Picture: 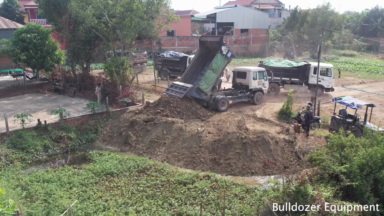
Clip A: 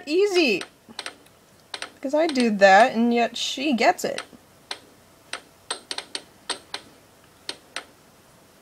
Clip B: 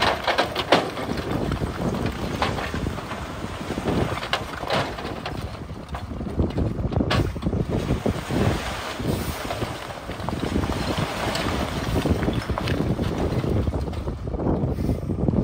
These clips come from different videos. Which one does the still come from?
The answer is B